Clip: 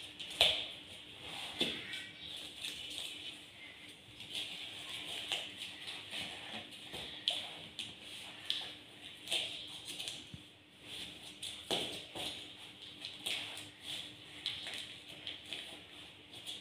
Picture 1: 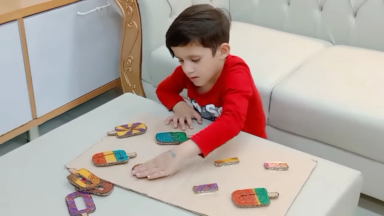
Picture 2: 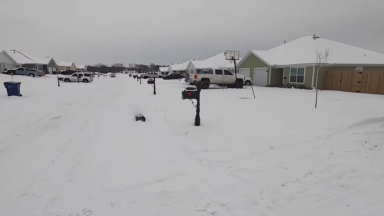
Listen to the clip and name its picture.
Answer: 1